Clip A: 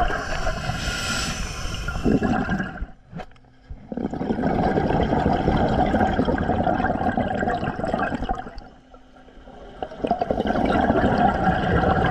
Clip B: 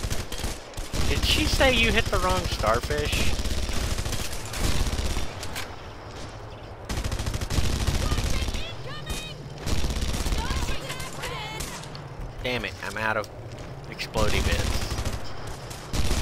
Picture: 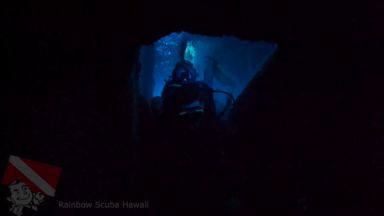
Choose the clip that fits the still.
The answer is A